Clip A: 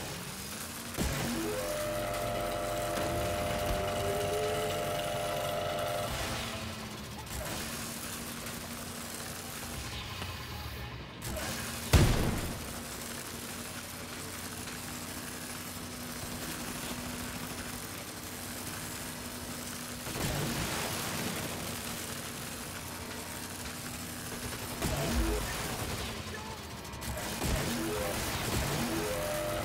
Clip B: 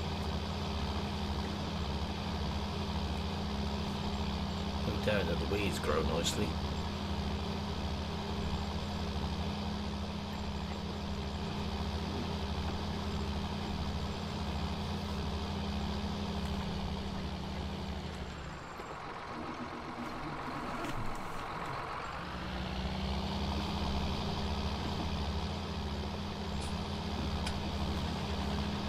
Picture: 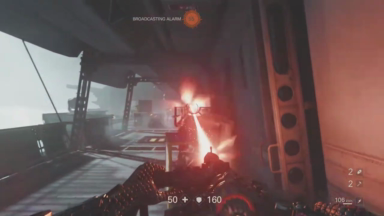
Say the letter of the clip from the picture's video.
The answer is A